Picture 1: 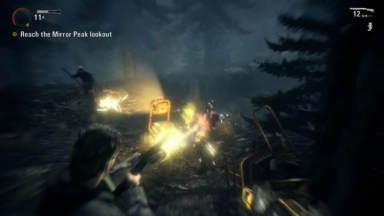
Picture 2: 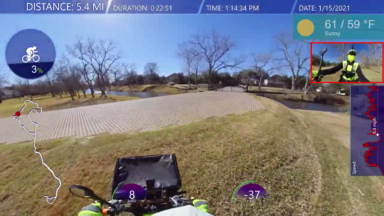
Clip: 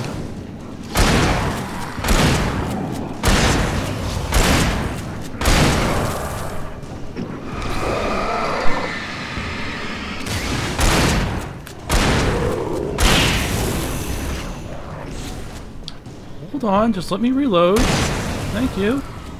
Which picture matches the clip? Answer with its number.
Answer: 1